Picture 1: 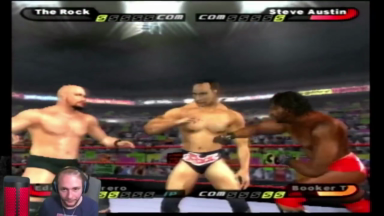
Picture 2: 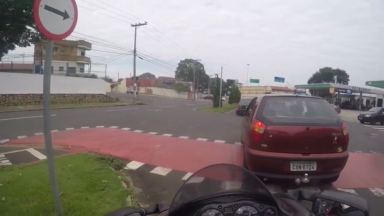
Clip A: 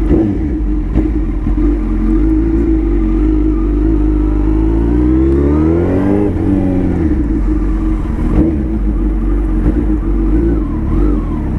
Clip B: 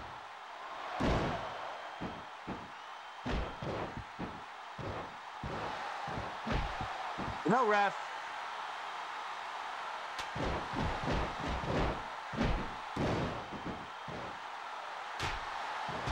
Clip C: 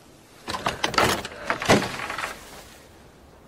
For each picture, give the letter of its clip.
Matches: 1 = B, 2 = A